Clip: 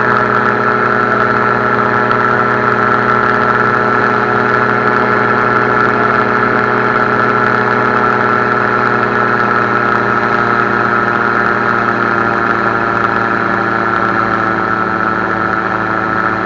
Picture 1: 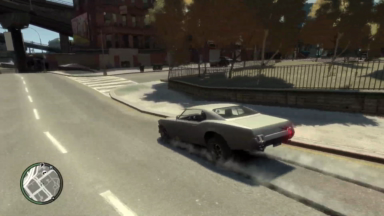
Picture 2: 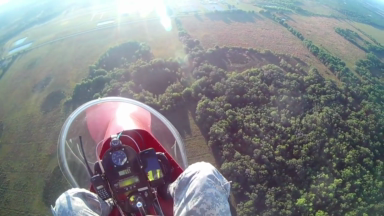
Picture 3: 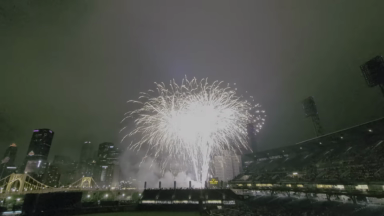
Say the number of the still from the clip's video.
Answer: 2